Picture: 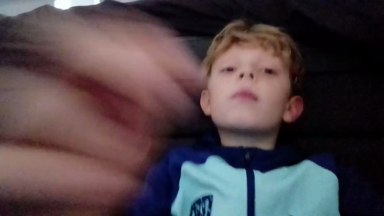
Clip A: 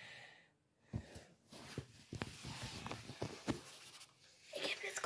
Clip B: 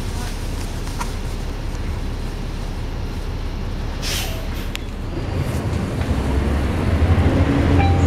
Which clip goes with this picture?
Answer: A